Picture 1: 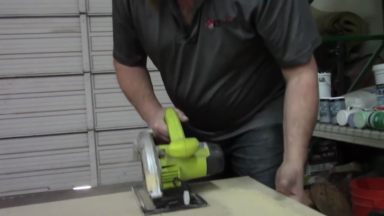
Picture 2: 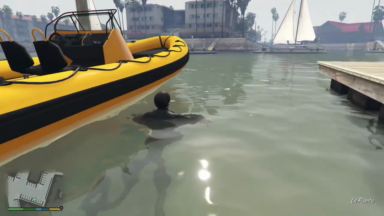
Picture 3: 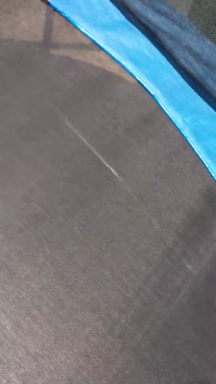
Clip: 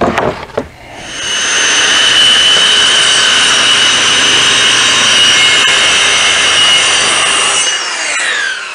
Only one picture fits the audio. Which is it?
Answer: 1